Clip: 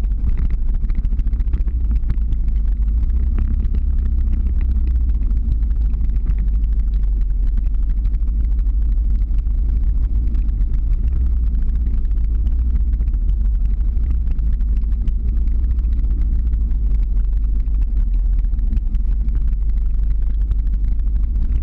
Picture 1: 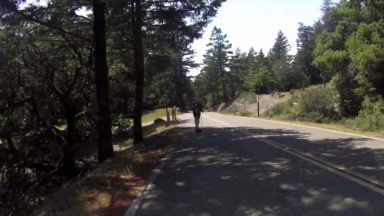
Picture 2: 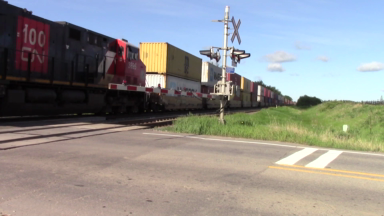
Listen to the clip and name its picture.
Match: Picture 1